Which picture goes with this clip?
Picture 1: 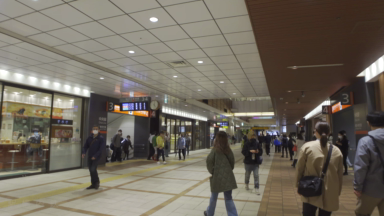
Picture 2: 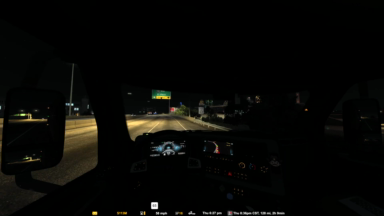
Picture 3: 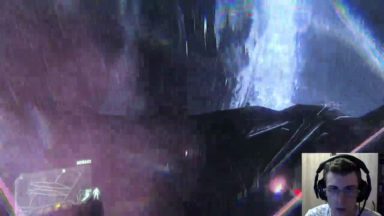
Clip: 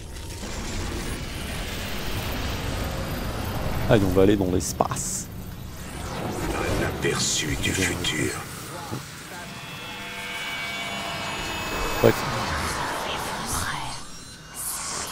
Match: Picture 3